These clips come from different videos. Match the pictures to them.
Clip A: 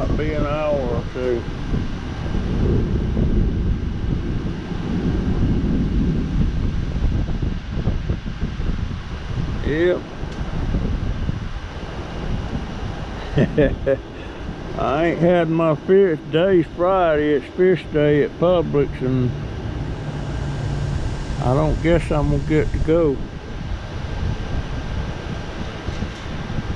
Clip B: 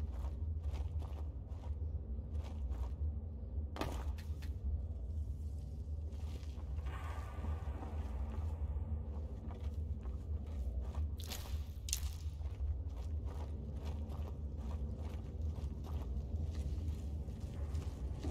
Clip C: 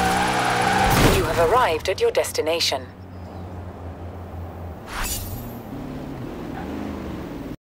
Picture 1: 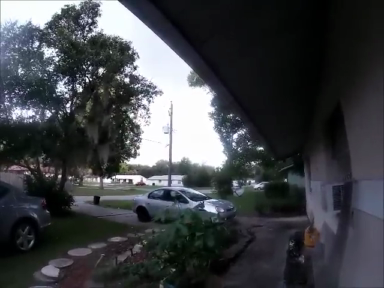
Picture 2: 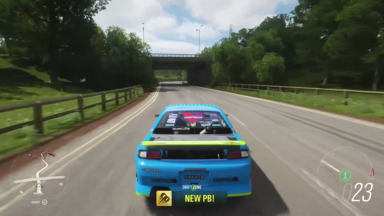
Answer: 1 A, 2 C